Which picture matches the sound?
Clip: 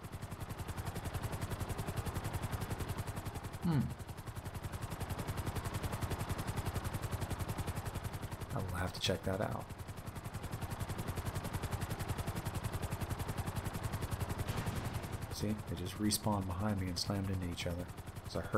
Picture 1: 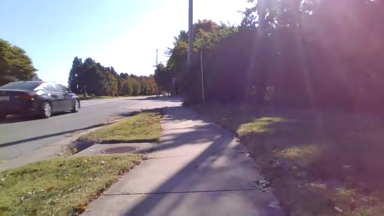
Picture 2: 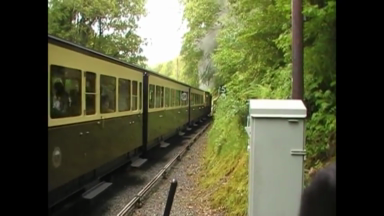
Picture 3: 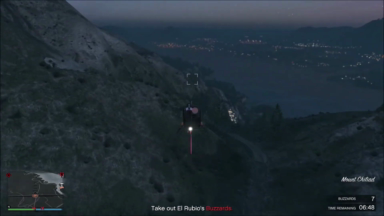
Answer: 3